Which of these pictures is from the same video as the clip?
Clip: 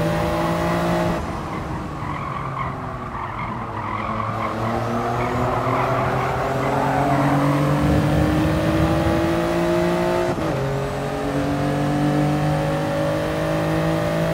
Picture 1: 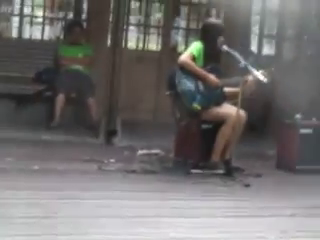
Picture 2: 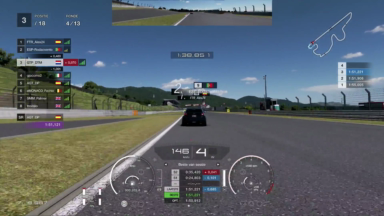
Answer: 2